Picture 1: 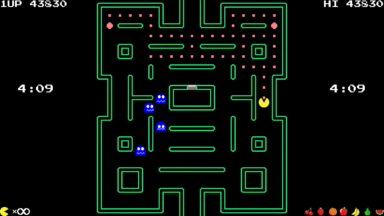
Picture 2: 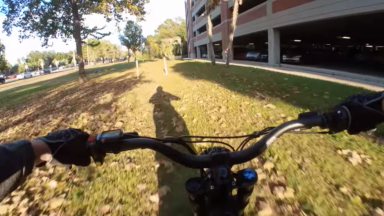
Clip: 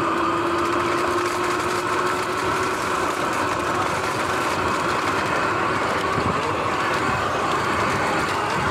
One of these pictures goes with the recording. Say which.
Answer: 2